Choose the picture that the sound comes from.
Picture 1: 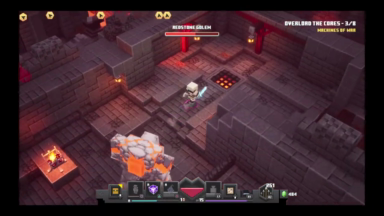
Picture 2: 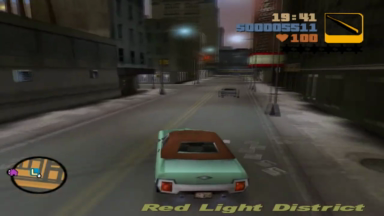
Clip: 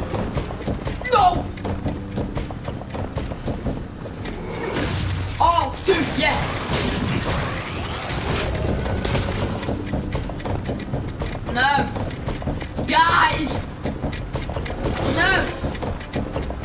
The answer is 1